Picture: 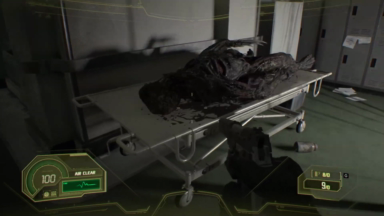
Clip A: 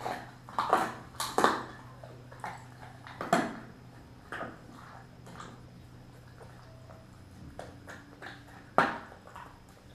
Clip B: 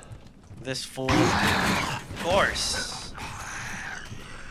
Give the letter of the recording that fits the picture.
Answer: B